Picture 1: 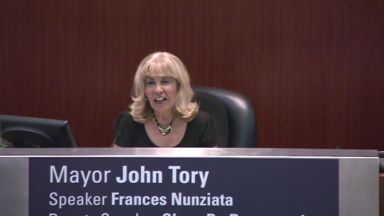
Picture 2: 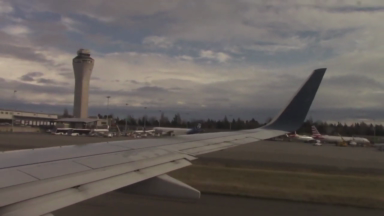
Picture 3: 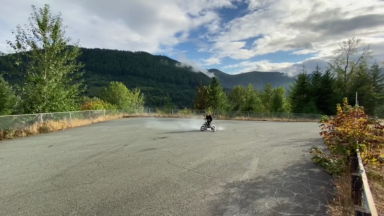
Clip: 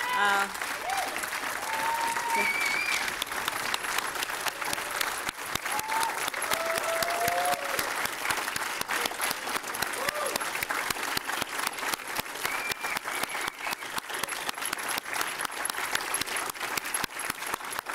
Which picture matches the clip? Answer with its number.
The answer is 1